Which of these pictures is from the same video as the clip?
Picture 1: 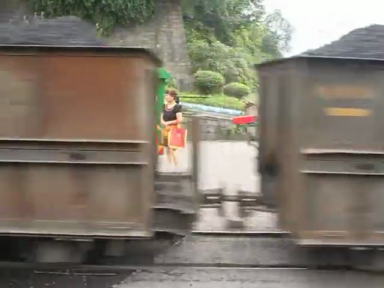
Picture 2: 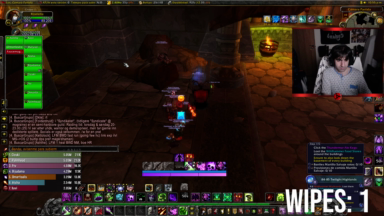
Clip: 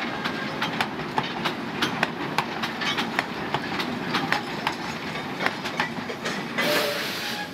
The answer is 1